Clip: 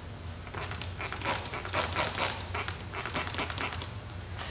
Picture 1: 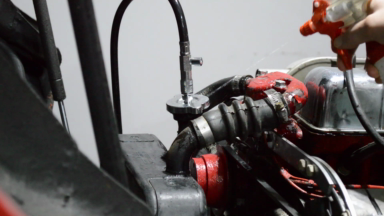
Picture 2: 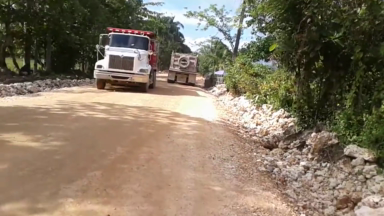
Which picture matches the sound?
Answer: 1